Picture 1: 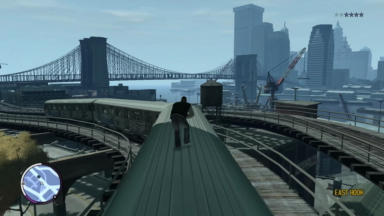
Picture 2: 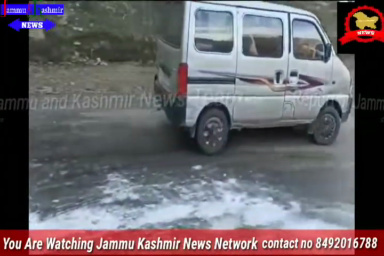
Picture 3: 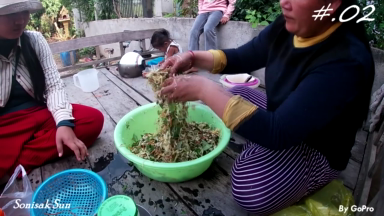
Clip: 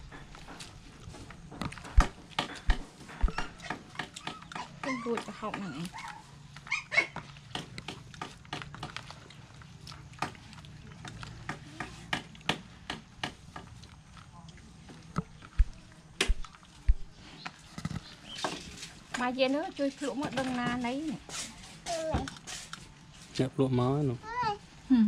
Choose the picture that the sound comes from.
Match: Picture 3